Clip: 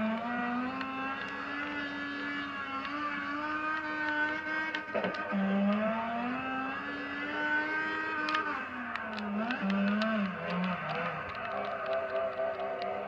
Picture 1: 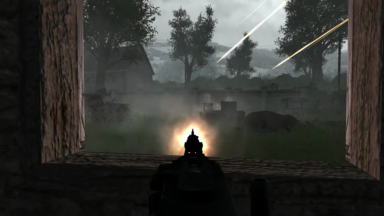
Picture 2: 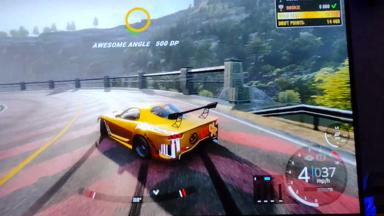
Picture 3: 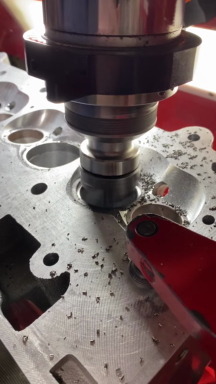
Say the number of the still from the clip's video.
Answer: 2